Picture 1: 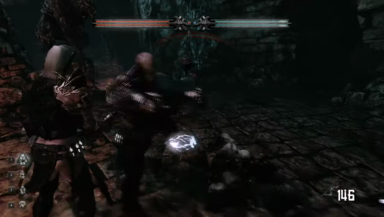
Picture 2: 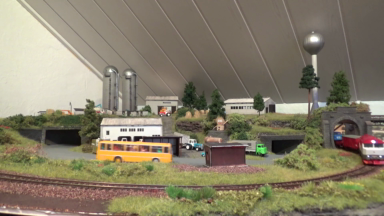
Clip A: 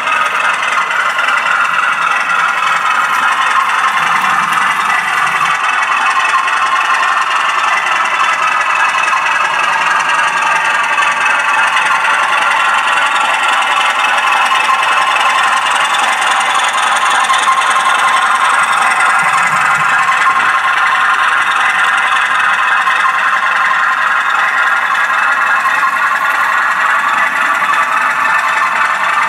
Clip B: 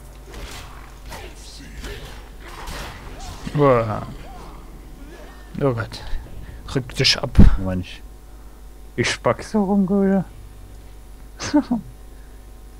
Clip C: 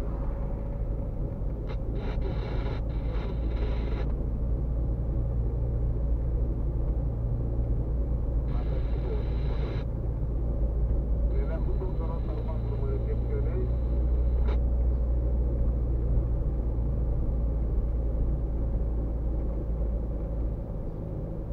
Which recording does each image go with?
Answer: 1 B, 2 A